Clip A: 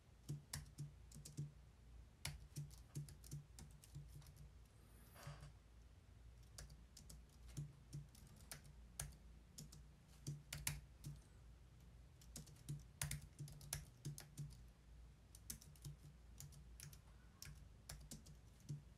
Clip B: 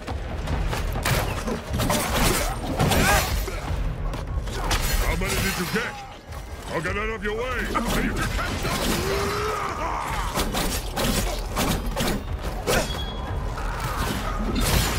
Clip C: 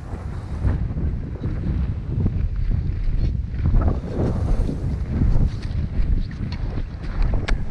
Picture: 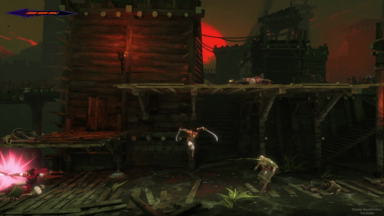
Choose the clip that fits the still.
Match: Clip B